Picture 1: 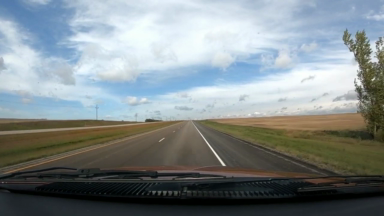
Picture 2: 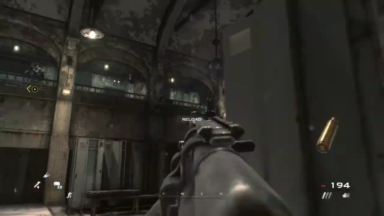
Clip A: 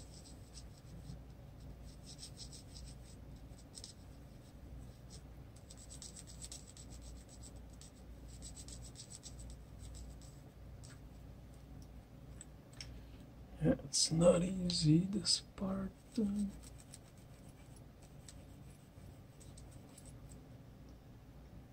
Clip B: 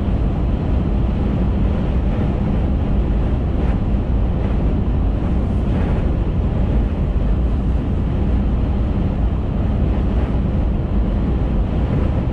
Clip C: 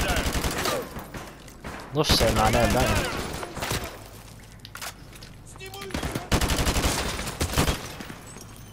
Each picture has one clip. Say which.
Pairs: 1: B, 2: C